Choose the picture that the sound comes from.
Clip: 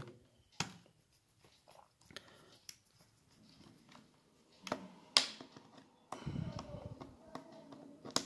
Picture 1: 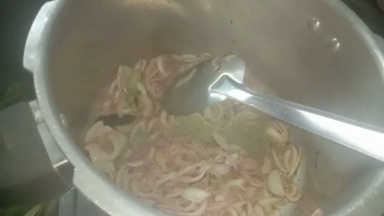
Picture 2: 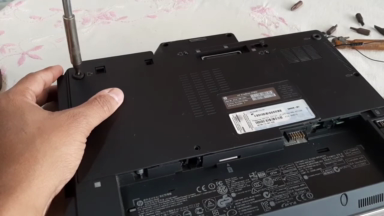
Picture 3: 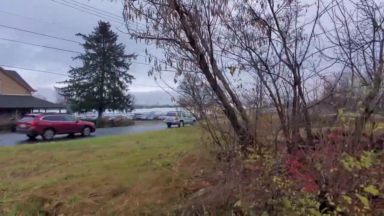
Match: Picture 2